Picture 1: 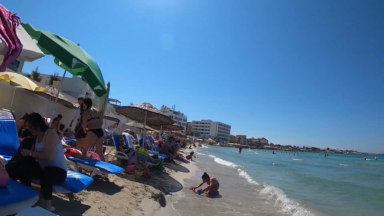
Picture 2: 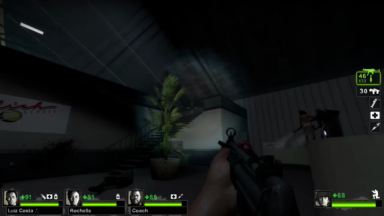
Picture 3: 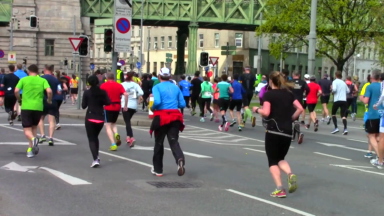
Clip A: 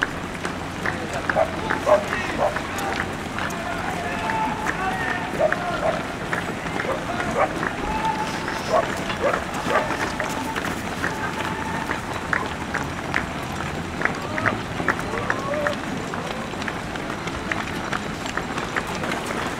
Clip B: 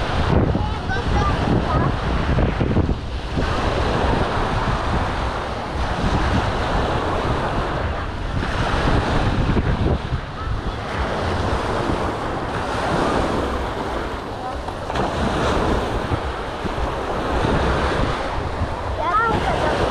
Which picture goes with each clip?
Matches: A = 3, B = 1